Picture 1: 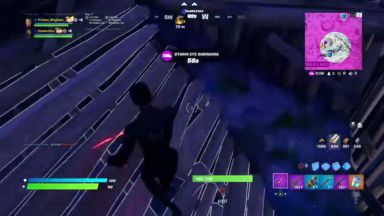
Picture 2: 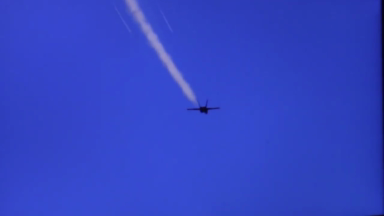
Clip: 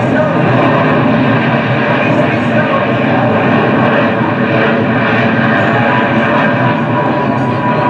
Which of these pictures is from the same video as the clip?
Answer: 2